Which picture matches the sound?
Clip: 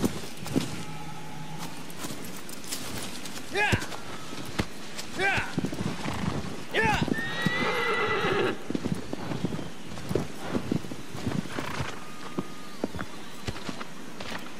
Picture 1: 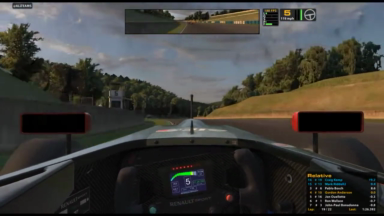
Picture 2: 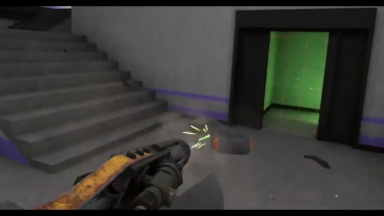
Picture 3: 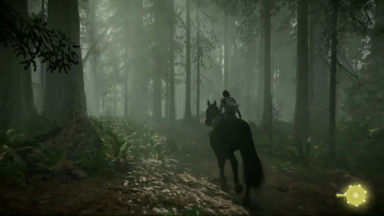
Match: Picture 3